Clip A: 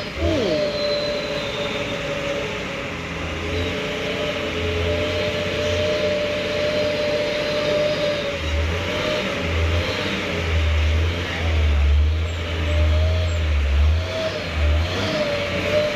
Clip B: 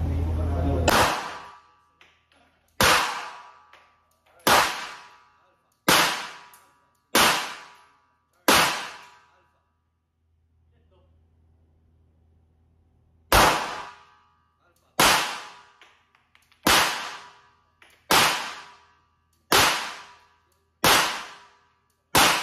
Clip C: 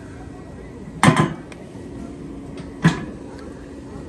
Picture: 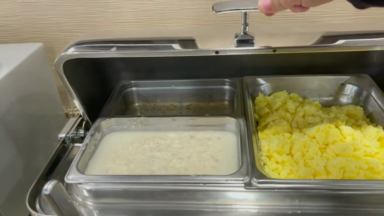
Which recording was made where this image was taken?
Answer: C